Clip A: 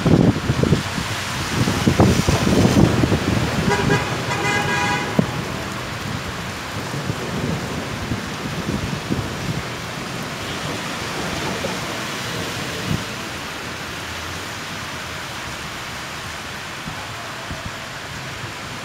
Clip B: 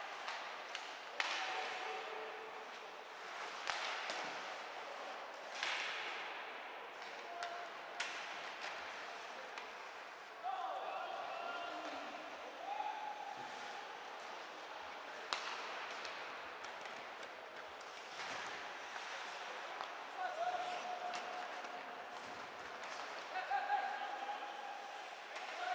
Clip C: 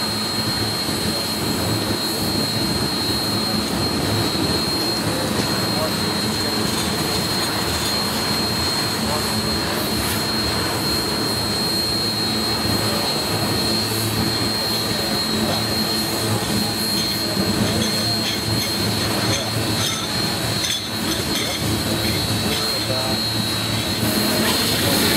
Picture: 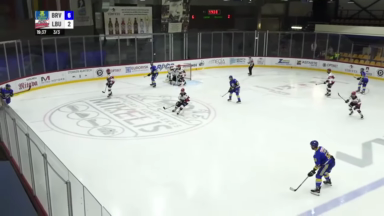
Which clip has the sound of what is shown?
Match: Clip B